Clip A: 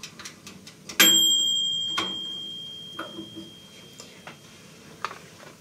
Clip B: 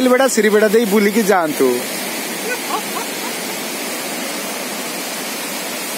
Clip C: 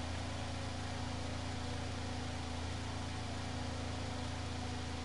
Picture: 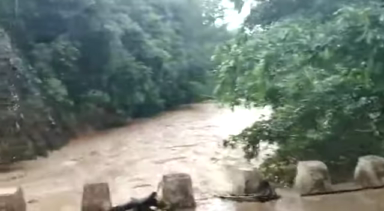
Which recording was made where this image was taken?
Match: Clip B